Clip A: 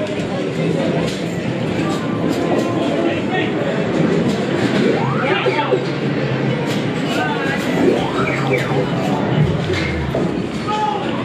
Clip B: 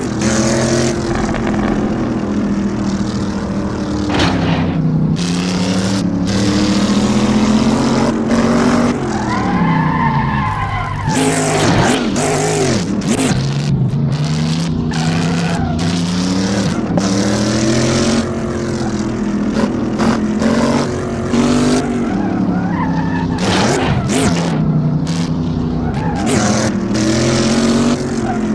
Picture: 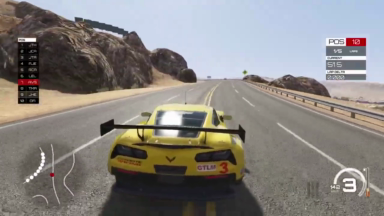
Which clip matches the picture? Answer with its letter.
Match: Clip B